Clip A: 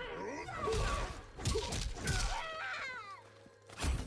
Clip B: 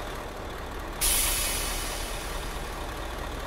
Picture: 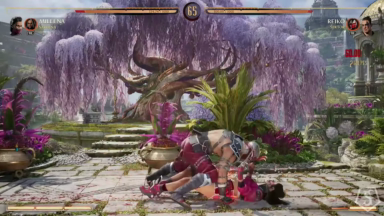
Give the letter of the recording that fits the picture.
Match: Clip A